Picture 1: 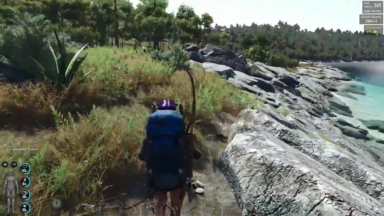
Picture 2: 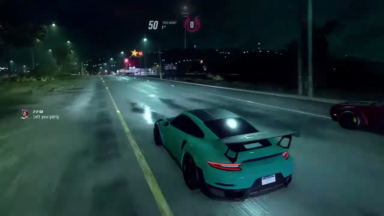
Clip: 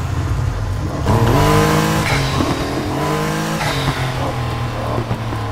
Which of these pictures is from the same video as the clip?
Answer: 2